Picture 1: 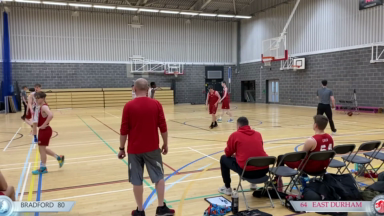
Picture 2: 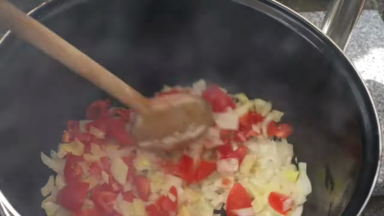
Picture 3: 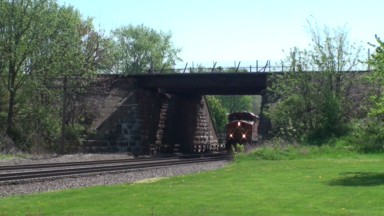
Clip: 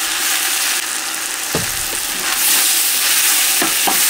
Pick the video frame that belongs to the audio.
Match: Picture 2